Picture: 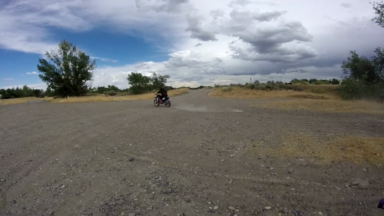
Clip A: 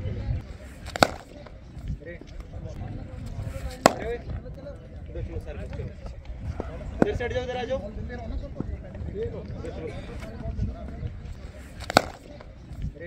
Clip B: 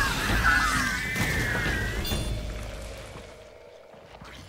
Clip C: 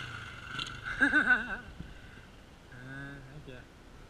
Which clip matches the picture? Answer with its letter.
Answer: C